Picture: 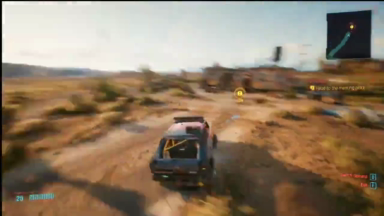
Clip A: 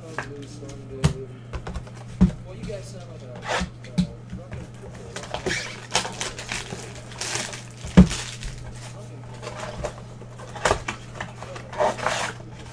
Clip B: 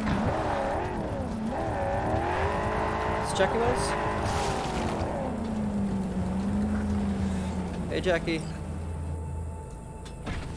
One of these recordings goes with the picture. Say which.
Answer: B